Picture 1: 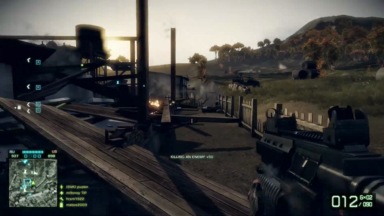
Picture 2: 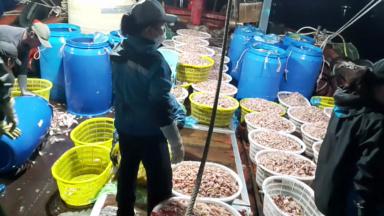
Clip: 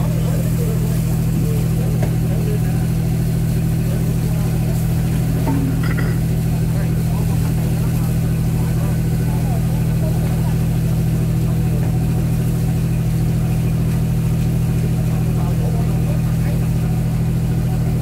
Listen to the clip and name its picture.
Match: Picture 2